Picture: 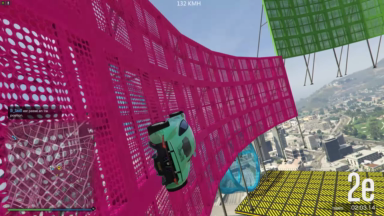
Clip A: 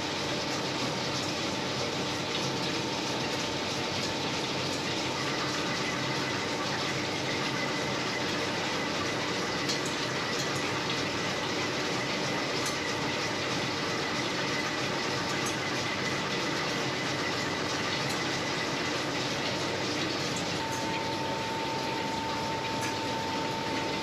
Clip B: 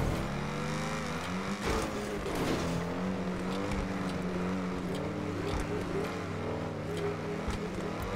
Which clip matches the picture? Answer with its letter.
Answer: B